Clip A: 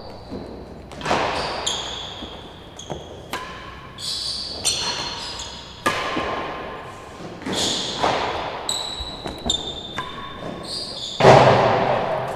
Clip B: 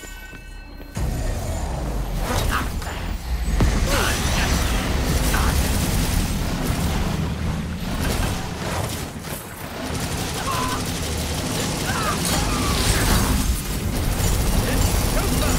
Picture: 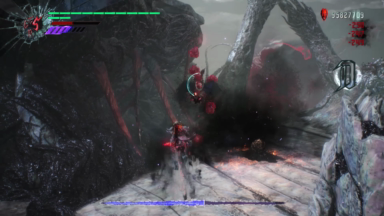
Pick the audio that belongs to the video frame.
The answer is B